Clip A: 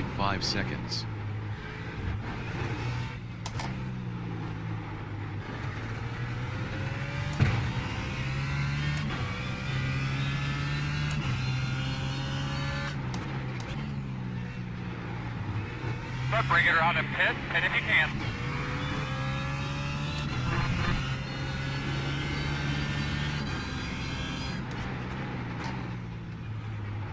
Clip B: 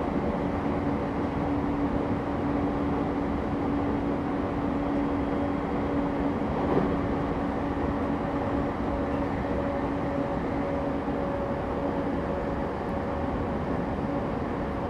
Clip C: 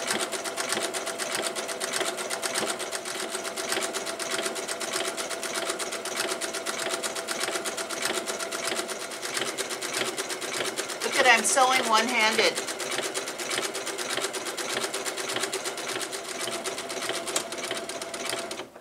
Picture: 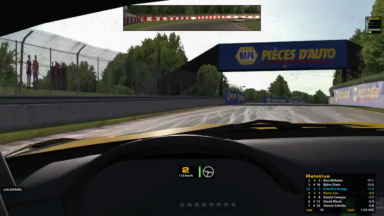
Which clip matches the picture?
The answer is A